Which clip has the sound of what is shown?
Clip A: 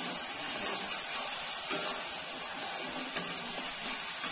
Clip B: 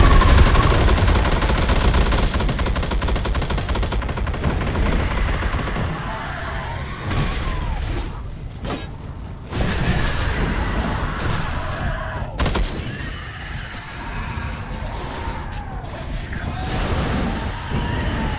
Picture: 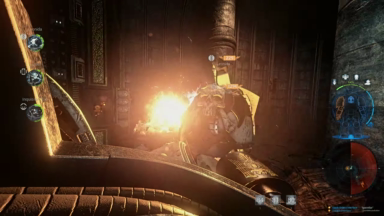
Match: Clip B